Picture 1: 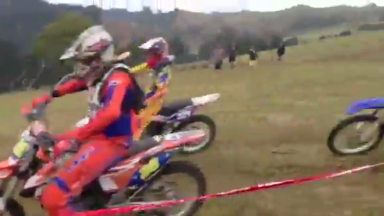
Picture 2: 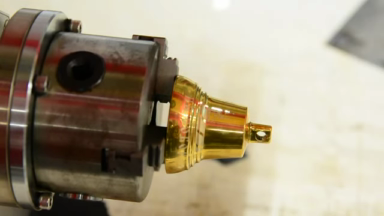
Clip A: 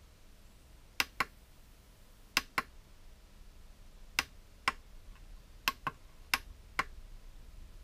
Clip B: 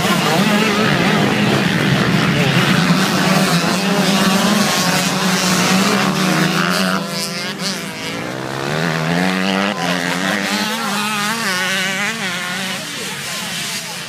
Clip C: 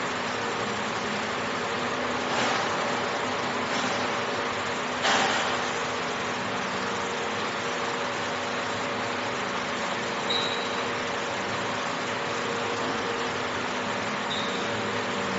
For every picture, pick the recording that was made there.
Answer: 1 B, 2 C